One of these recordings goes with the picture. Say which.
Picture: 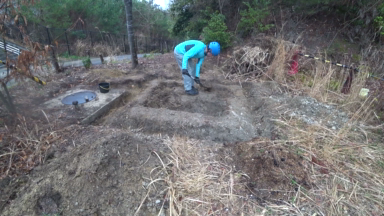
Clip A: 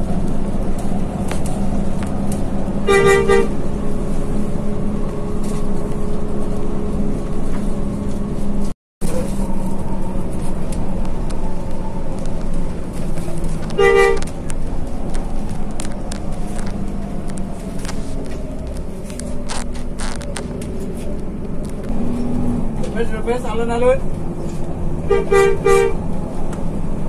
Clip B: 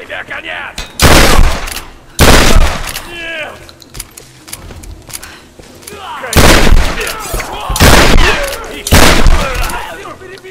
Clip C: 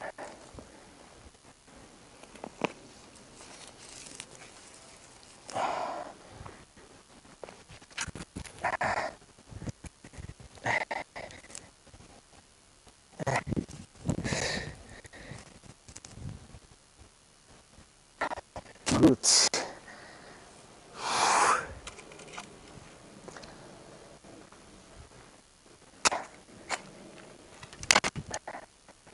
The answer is C